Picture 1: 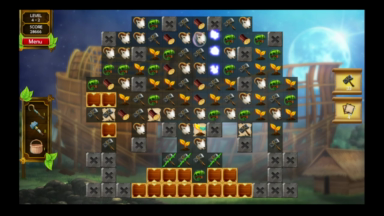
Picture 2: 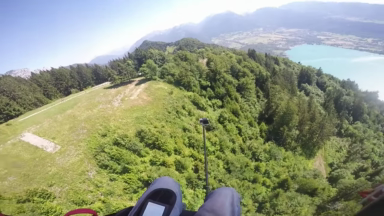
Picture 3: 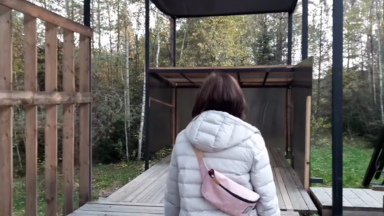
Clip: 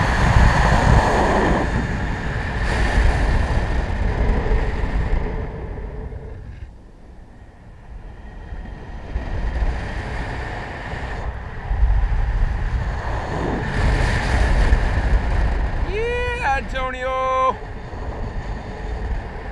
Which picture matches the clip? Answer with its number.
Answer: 2